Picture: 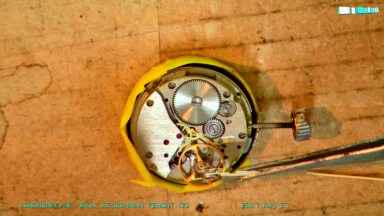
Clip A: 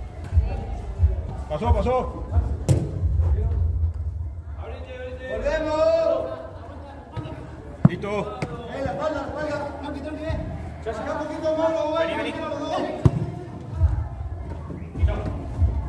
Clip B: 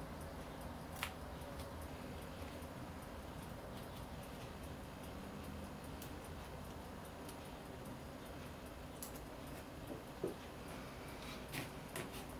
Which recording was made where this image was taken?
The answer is B